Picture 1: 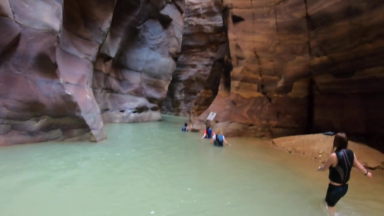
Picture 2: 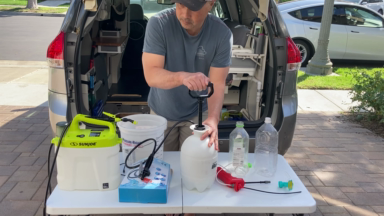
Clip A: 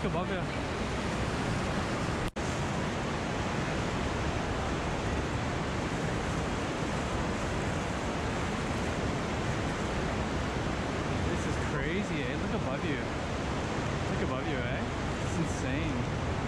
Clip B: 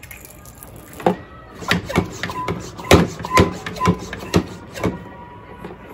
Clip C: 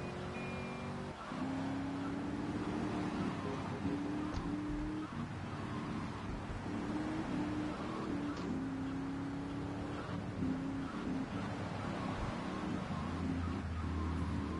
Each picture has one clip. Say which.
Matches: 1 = A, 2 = B